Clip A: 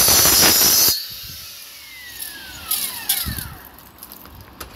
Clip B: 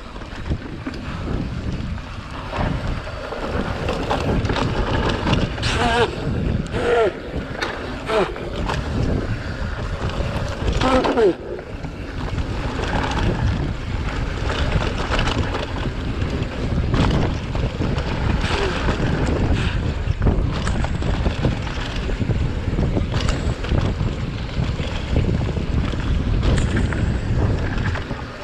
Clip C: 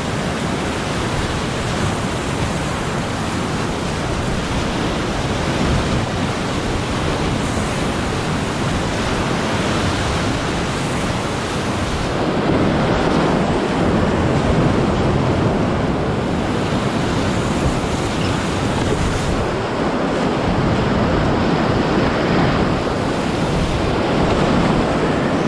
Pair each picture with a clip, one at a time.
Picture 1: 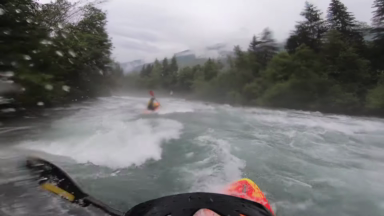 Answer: C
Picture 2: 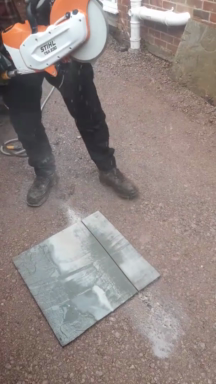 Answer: A